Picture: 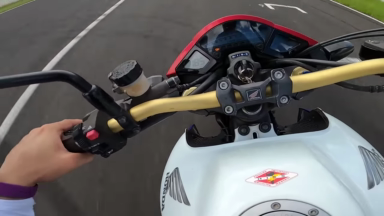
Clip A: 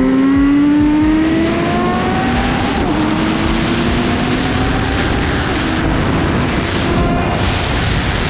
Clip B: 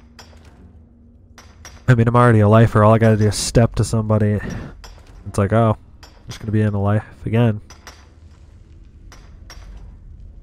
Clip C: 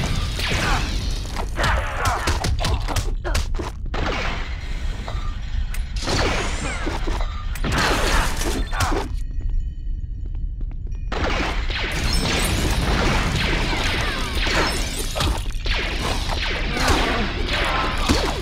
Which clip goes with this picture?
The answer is A